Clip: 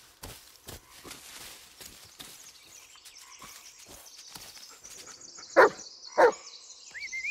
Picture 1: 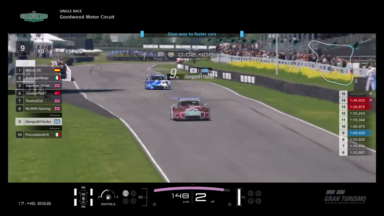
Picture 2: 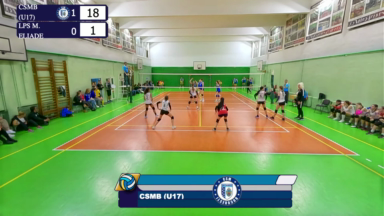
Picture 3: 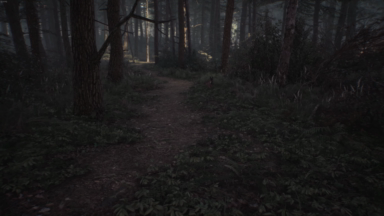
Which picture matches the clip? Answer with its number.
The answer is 3